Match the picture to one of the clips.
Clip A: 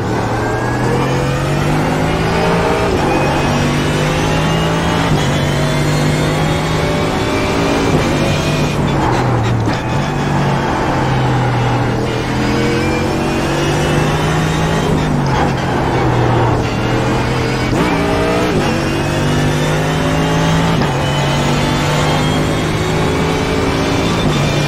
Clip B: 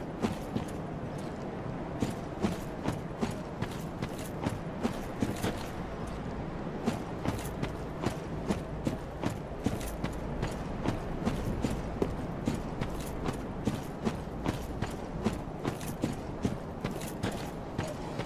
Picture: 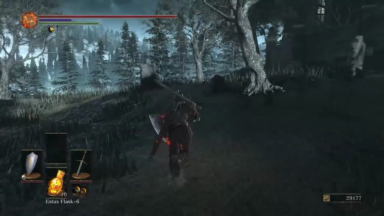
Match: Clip B